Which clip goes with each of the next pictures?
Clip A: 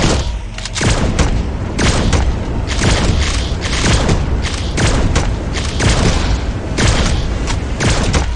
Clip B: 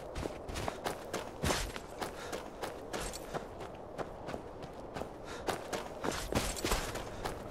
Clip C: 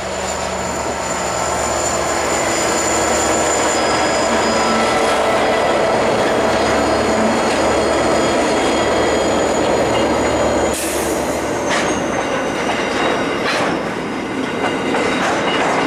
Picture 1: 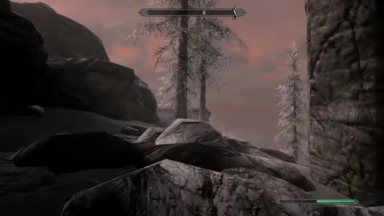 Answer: B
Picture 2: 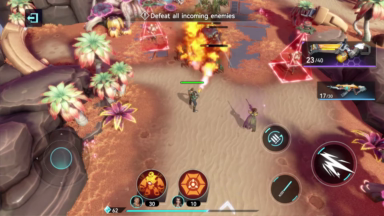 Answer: A